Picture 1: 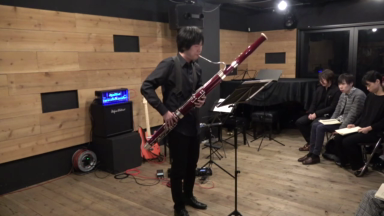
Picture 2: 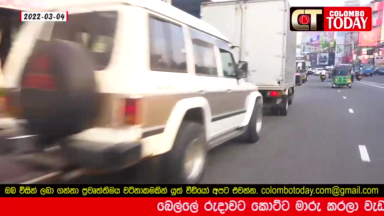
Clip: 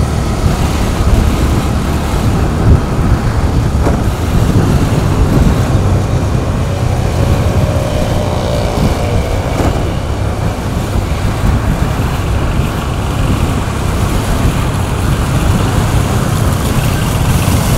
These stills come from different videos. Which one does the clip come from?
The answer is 2